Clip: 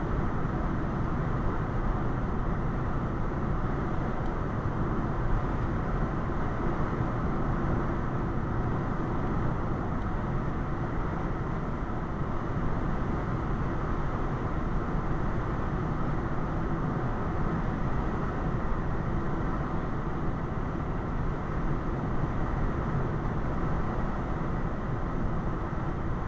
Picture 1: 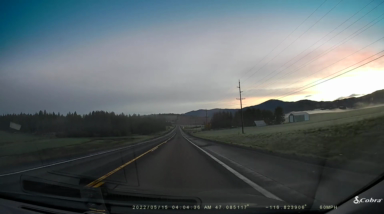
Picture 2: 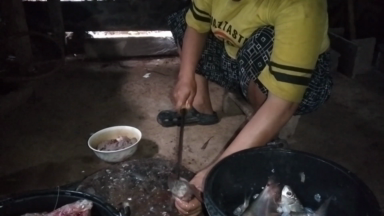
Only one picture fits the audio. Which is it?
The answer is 1